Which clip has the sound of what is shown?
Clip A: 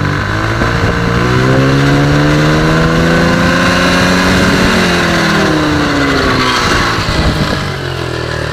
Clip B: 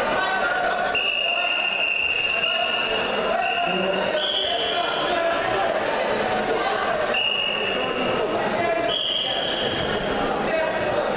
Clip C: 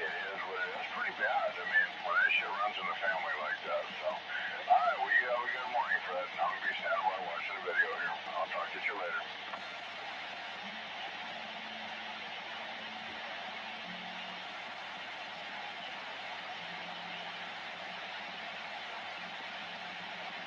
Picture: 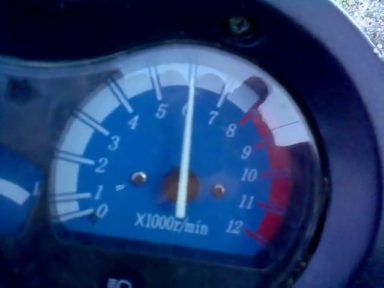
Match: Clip A